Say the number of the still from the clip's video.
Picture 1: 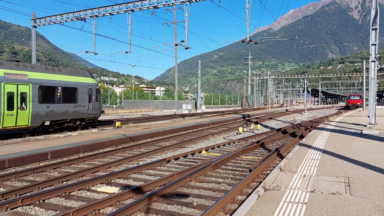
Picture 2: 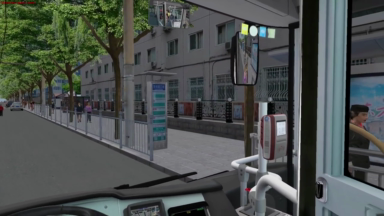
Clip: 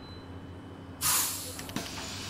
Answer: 2